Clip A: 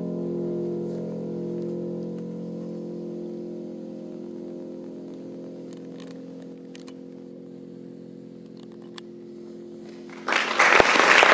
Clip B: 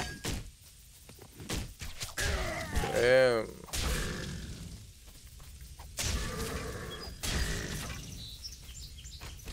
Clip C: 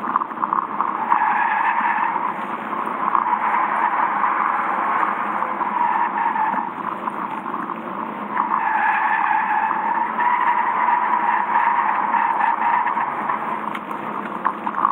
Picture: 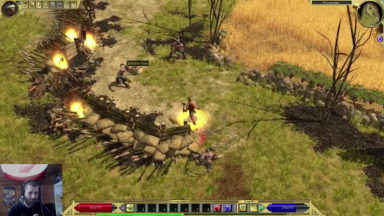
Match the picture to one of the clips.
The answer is B